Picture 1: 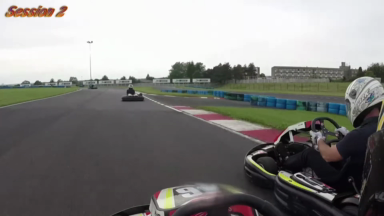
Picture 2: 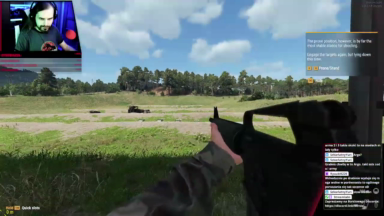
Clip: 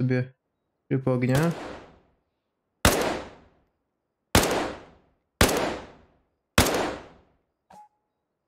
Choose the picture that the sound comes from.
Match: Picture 2